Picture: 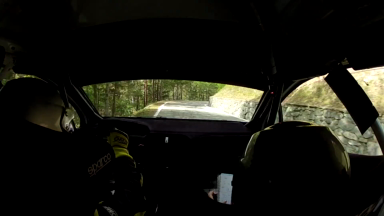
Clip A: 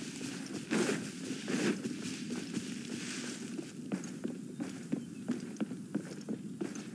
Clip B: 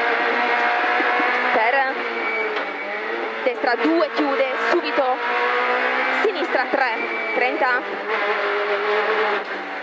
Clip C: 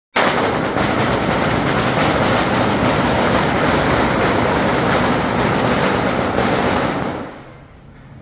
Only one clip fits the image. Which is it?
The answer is B